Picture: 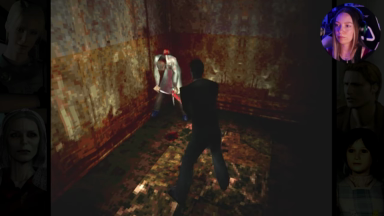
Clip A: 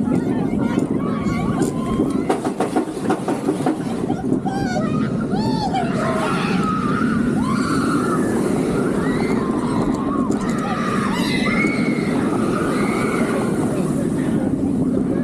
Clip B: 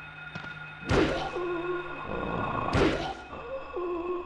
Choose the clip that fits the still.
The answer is B